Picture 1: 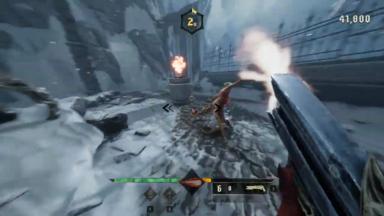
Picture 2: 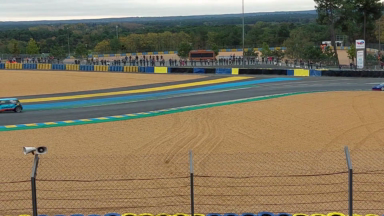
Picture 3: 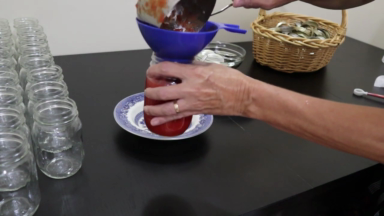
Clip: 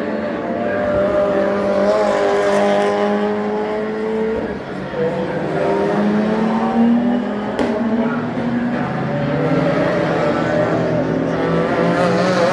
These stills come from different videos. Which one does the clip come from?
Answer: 2